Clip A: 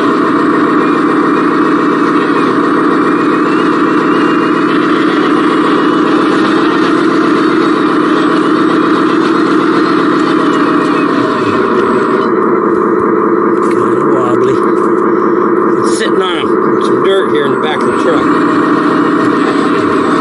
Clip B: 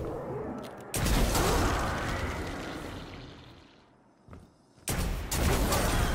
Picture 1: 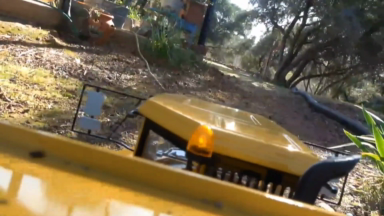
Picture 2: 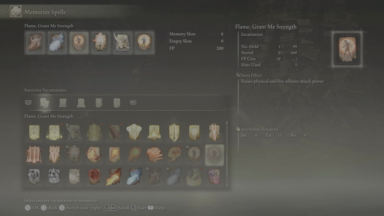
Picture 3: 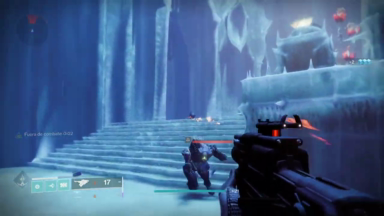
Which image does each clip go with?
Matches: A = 1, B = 3